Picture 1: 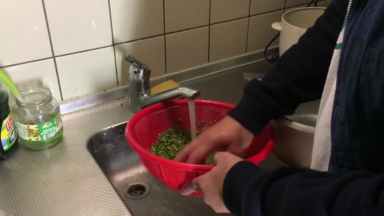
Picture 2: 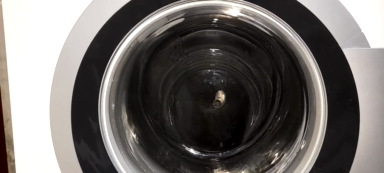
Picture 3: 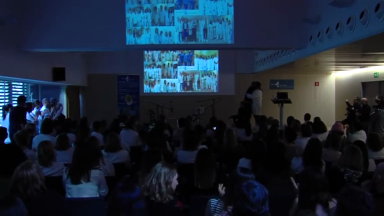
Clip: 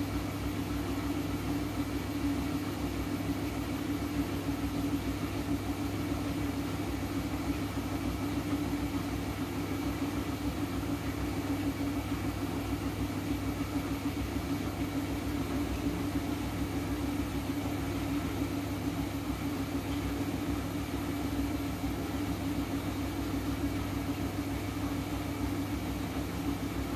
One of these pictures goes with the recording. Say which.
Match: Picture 2